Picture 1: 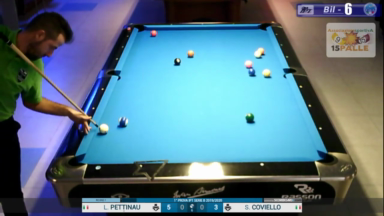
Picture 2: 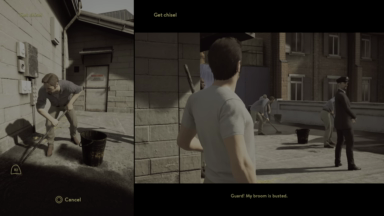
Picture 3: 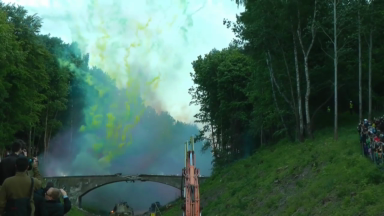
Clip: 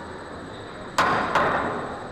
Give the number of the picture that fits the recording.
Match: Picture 1